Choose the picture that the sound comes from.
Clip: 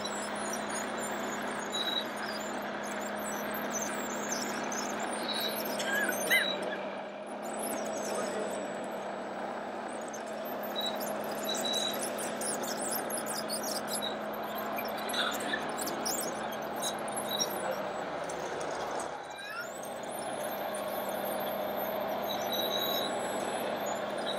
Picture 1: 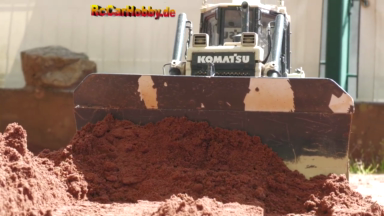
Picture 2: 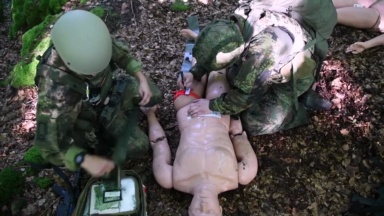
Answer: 1